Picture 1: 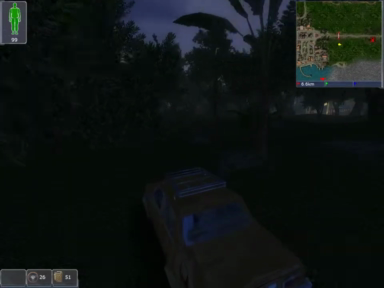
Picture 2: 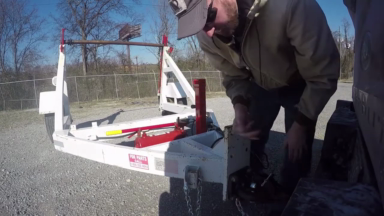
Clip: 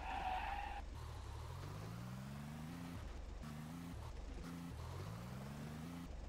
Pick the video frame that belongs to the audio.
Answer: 1